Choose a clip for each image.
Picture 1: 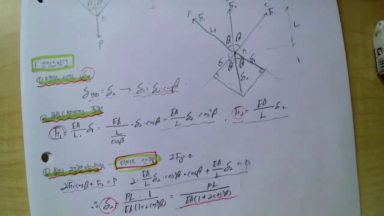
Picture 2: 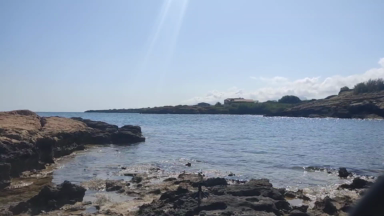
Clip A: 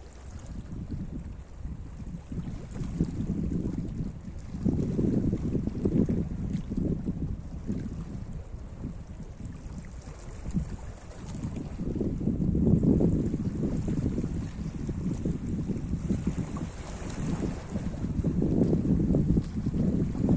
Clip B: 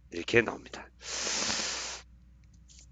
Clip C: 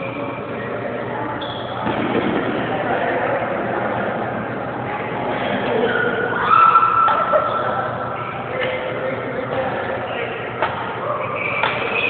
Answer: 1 B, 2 A